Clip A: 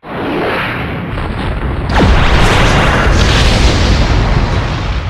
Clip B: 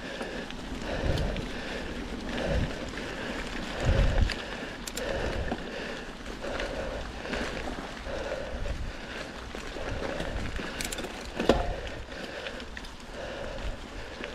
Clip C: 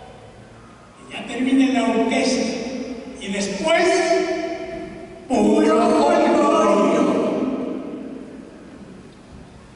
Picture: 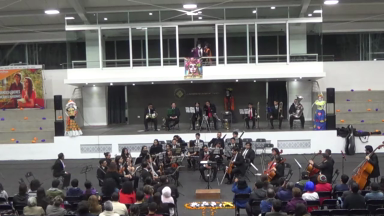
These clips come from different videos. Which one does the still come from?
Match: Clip C